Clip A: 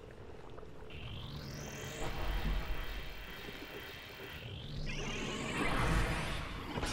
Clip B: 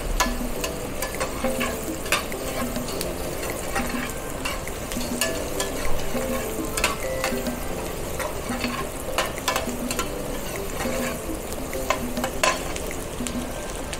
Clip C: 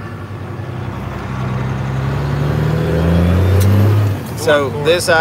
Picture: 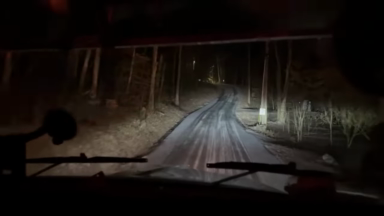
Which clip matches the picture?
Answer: C